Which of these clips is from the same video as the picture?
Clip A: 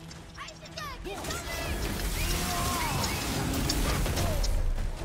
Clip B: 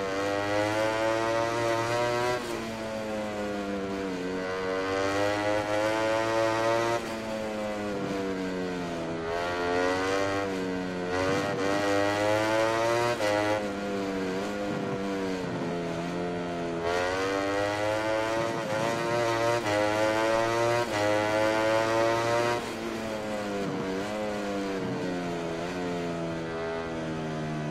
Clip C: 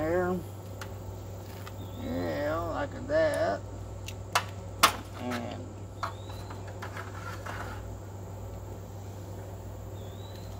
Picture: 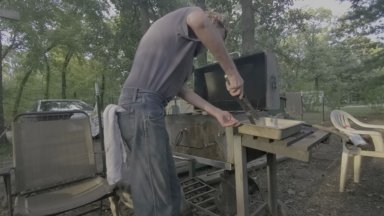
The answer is C